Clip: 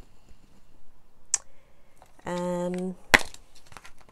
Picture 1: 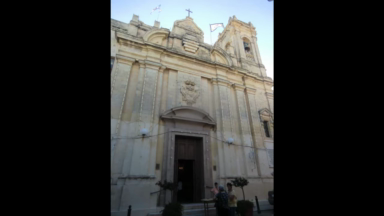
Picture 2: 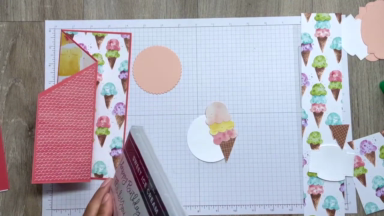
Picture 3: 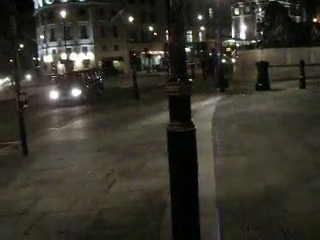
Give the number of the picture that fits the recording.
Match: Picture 2